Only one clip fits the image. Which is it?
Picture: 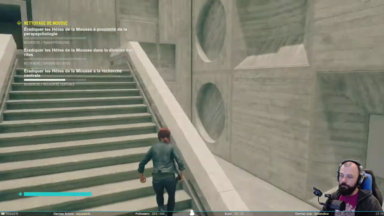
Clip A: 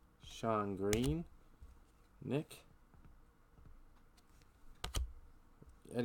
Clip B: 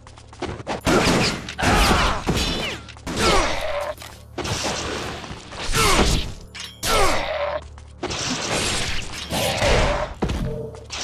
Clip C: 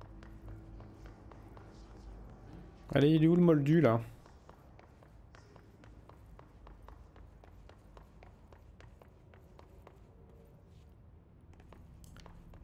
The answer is C